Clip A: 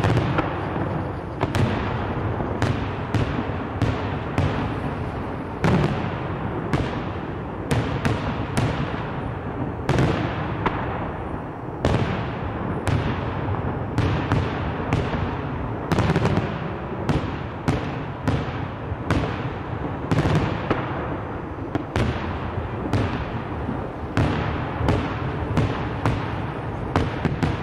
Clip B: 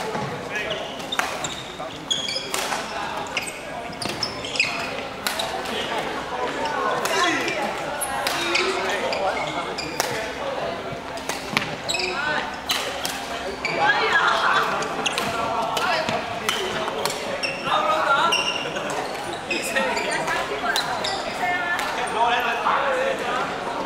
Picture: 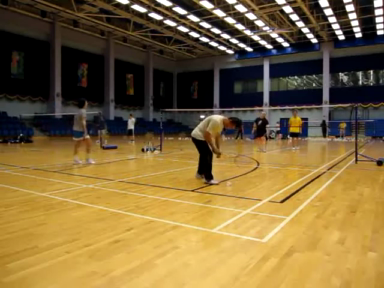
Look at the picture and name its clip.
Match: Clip B